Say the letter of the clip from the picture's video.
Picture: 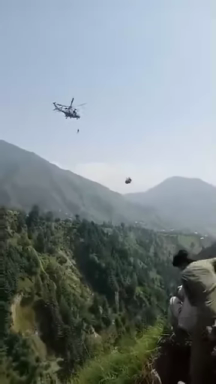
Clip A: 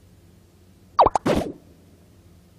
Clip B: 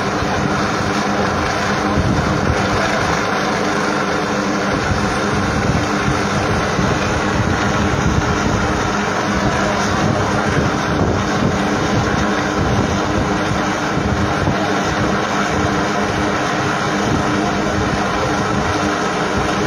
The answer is B